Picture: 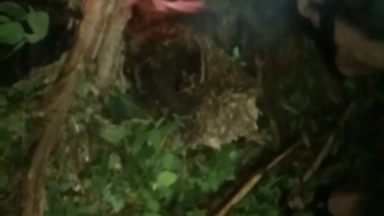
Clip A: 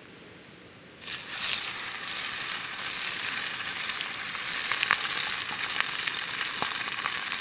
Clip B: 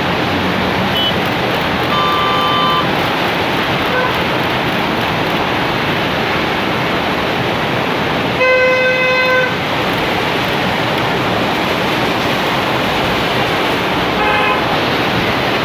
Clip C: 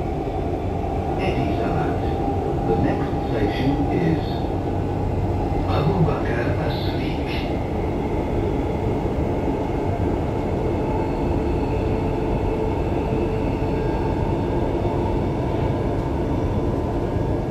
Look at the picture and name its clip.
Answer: A